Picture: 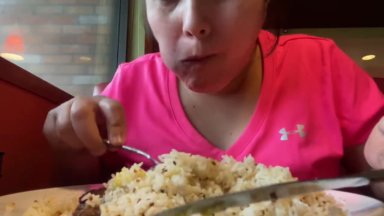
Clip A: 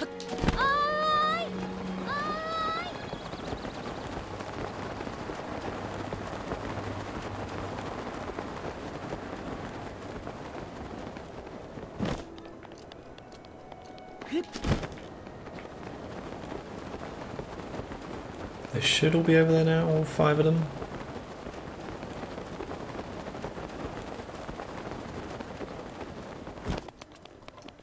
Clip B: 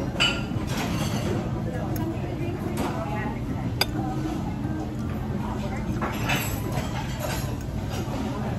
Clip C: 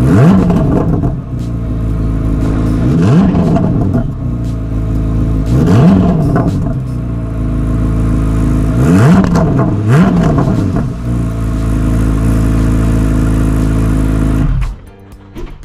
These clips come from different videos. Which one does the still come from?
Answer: B